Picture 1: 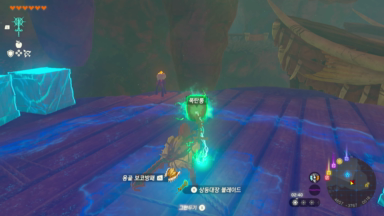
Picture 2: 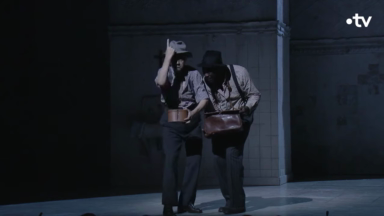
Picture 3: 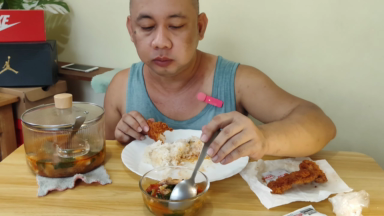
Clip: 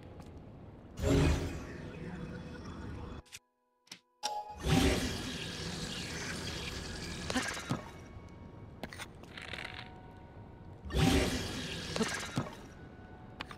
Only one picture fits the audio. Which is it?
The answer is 1